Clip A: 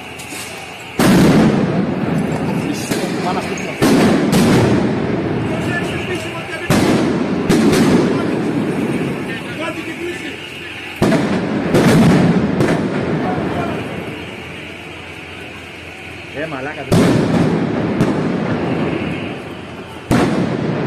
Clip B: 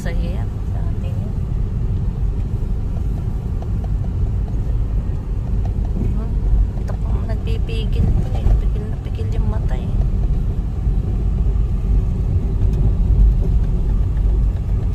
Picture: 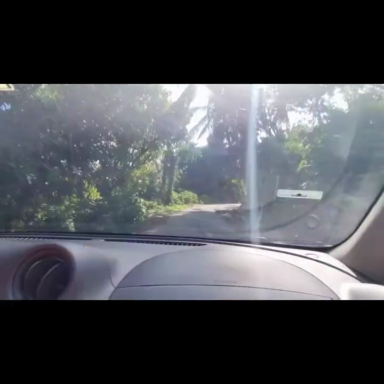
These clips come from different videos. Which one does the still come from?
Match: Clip B